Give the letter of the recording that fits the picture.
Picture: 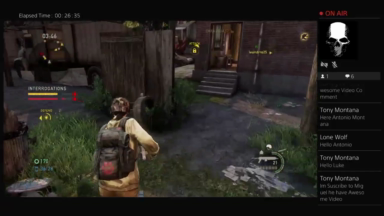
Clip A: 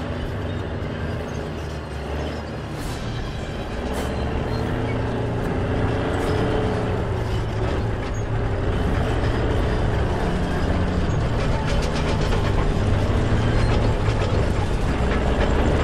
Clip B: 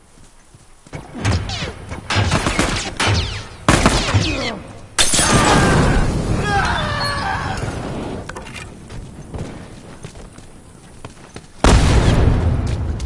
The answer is B